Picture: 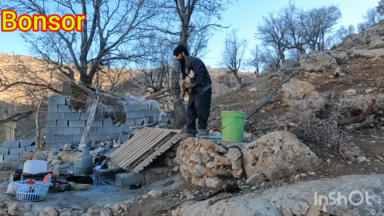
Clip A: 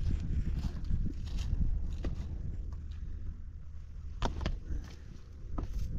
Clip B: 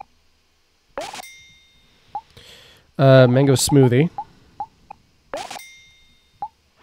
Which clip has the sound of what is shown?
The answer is A